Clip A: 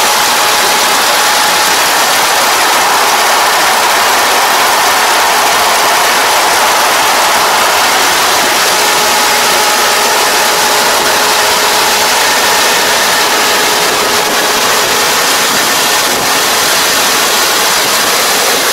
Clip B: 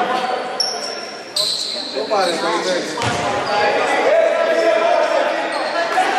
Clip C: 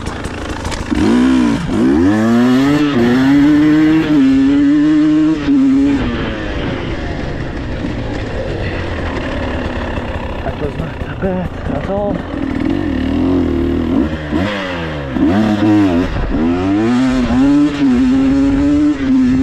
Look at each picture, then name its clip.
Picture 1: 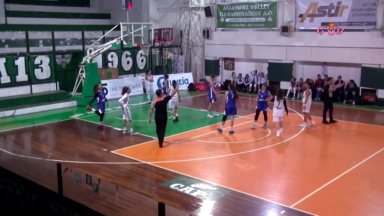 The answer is B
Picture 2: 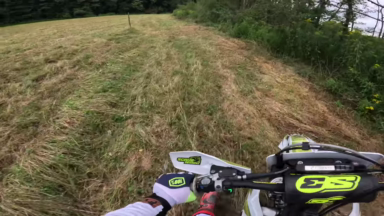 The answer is C